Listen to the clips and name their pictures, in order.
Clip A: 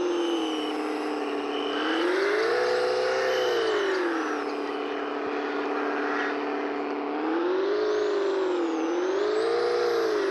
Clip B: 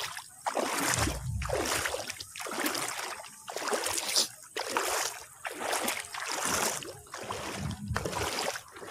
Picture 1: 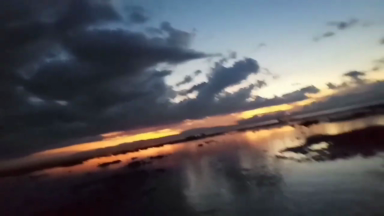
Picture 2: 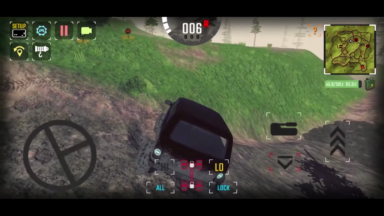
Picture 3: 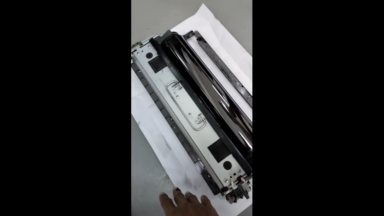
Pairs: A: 2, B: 1